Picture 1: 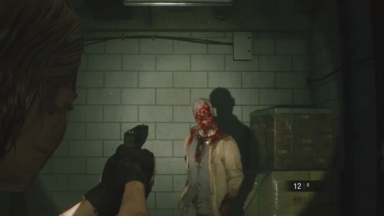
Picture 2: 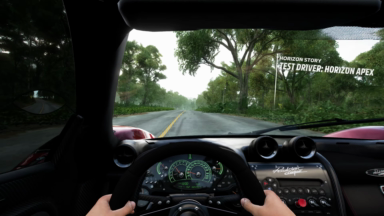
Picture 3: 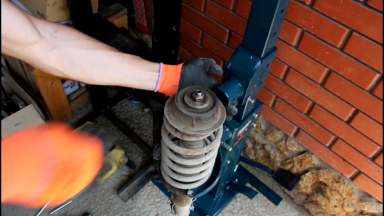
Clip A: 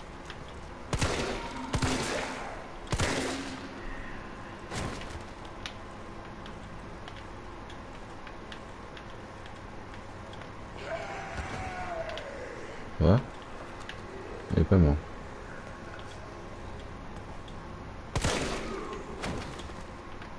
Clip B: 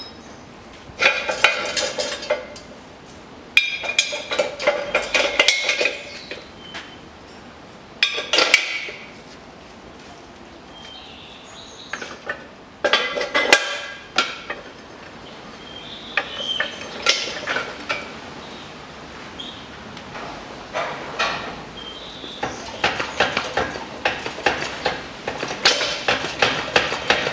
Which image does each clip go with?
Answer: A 1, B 3